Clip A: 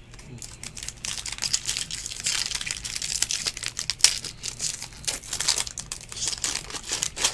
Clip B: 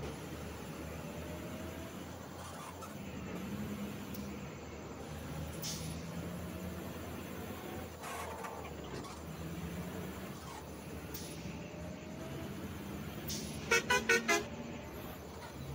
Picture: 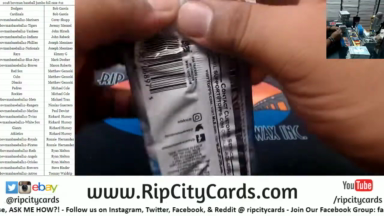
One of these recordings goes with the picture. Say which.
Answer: A